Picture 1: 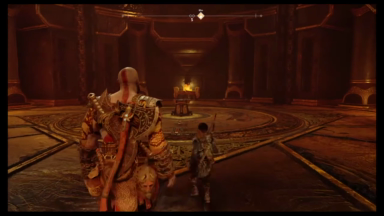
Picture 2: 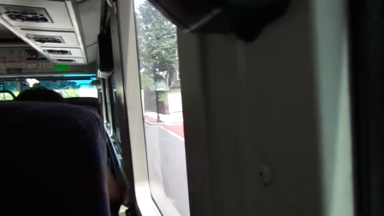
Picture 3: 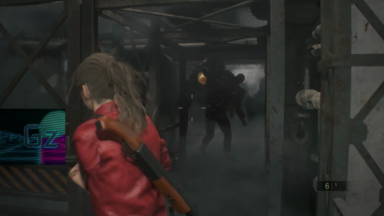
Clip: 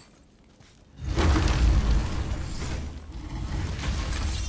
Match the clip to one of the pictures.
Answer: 1